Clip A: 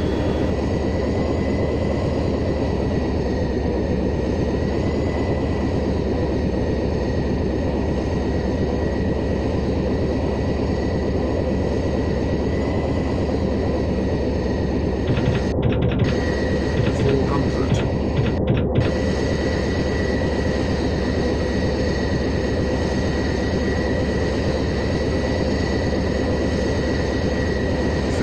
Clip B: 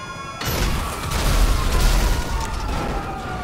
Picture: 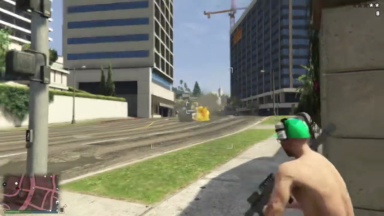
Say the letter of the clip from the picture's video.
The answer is B